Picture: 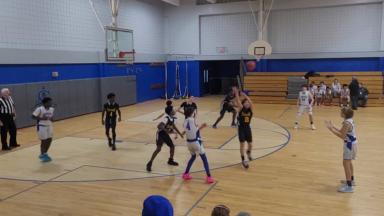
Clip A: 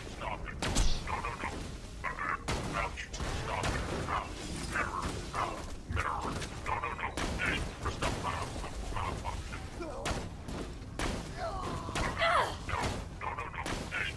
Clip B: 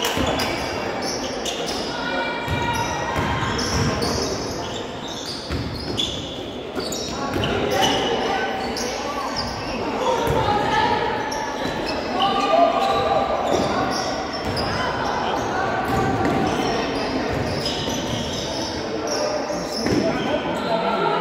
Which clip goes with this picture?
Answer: B